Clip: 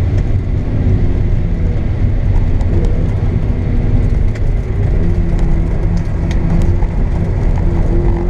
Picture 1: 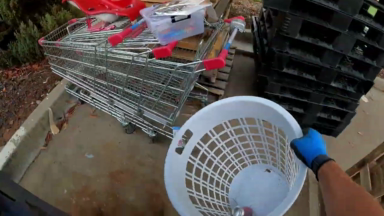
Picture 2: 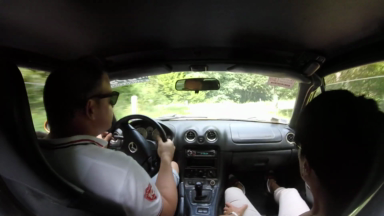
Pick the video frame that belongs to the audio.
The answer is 2